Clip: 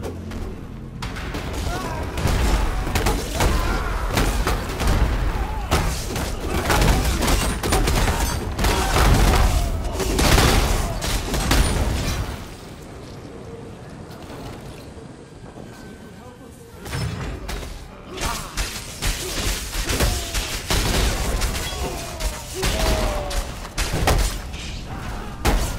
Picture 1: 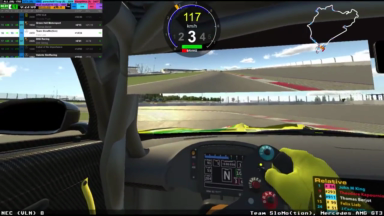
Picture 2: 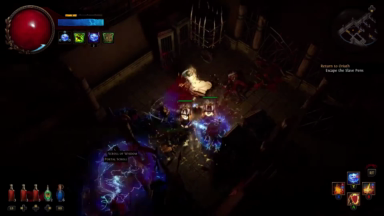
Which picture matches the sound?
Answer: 2